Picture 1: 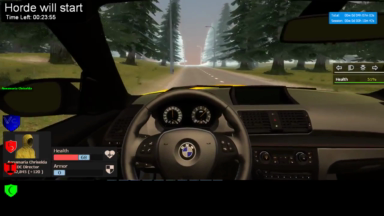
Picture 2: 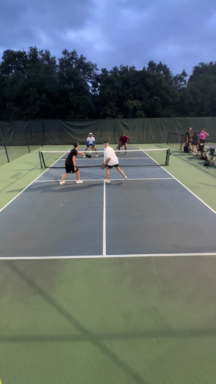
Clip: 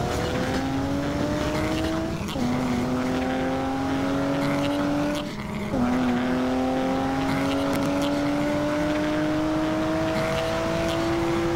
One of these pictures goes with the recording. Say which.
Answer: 1